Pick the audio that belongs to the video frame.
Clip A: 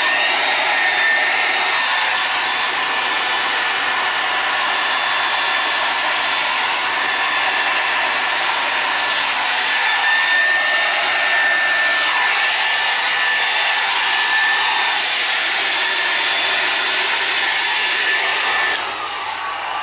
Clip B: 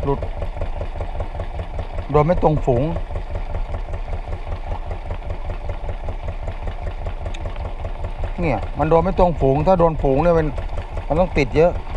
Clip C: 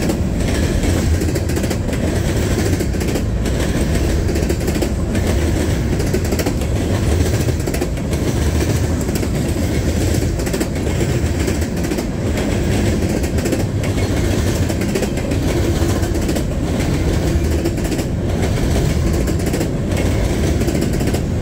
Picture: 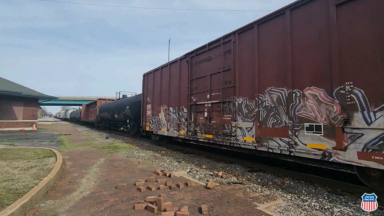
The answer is C